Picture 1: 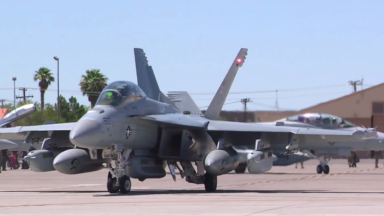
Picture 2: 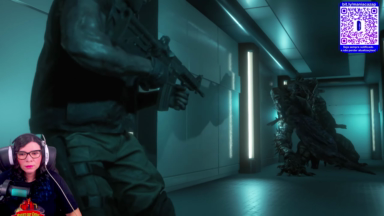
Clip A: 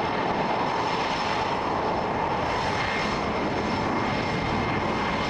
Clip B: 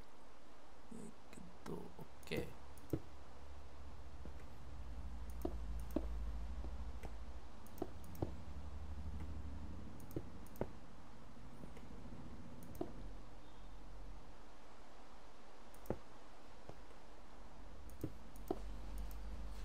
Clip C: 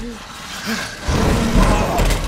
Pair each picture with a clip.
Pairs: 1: A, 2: C